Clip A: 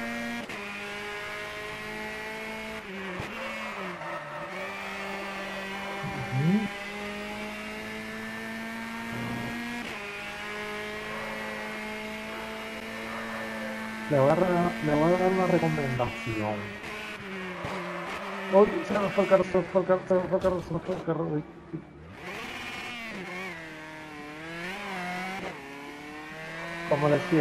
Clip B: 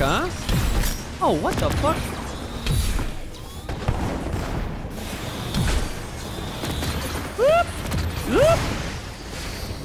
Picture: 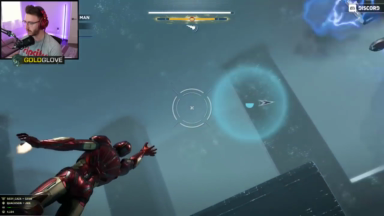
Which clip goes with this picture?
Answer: B